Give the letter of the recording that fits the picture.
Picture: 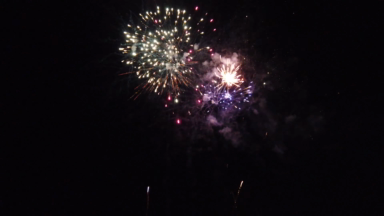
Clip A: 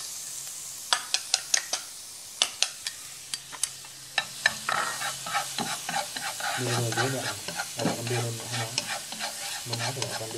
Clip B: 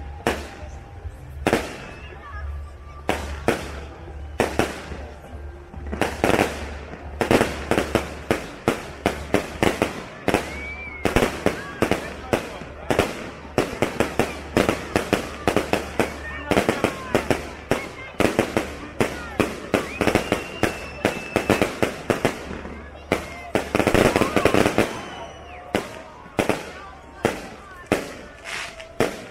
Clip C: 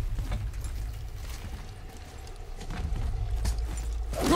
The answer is B